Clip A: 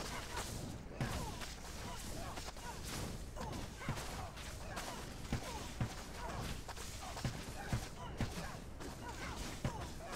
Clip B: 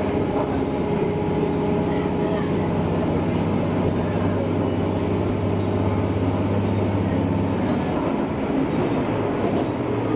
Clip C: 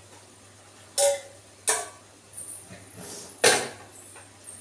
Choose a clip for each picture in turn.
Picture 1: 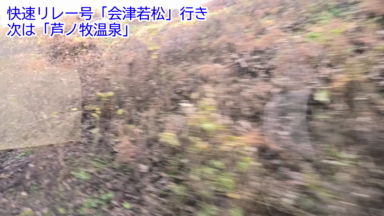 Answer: B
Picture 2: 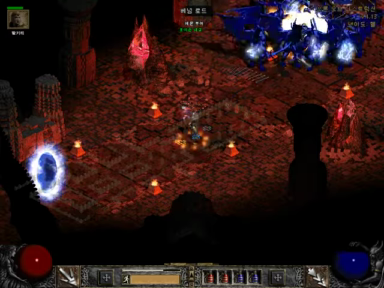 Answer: A